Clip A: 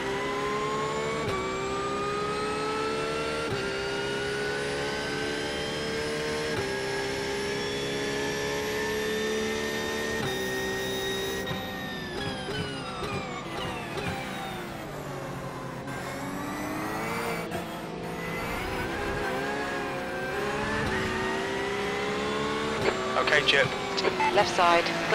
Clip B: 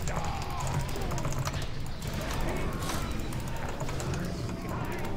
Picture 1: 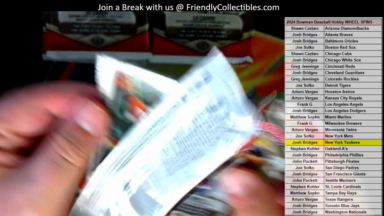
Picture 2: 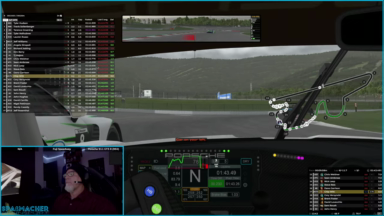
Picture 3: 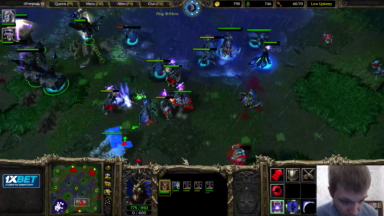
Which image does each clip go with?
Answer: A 2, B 3